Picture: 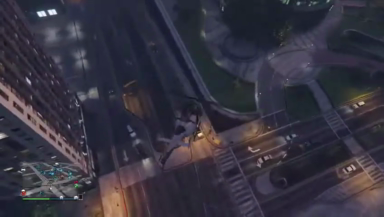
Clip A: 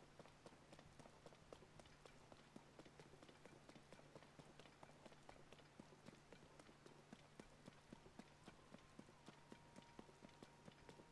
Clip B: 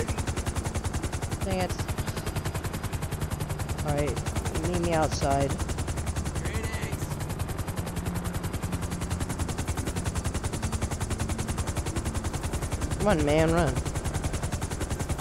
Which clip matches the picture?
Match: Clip B